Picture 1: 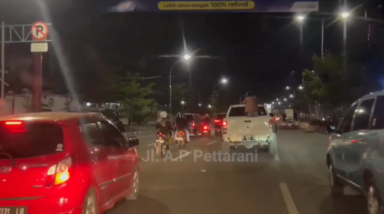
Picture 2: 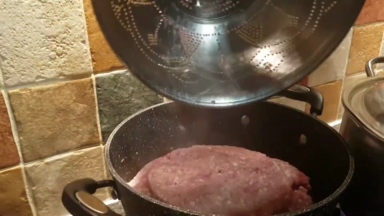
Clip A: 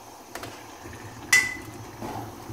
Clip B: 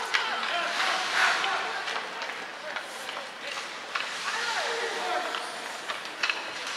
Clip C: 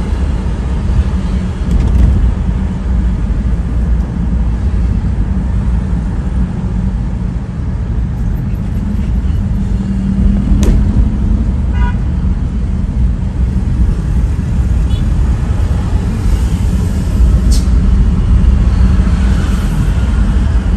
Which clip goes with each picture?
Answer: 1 C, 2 A